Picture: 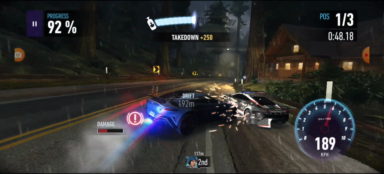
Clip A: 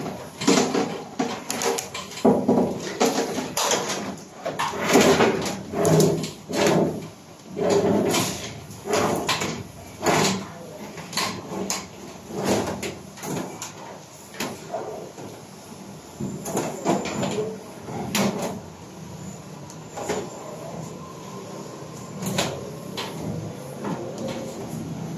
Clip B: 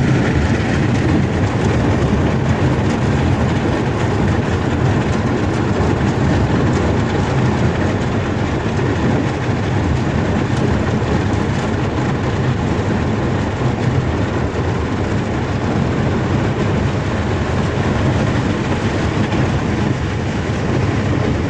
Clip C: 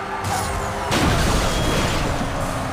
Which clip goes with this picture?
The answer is C